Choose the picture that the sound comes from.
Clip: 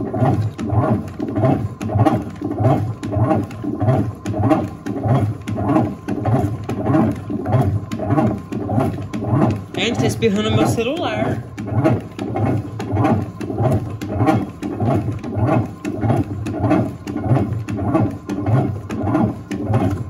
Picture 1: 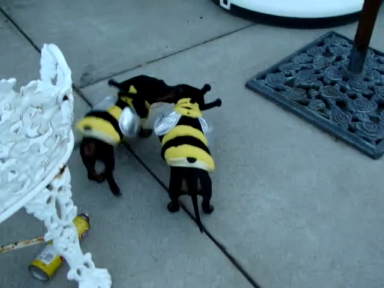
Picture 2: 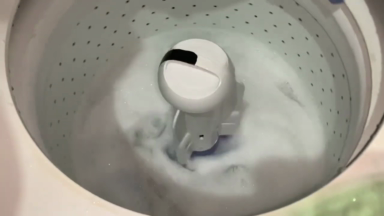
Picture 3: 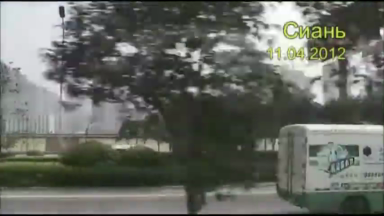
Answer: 2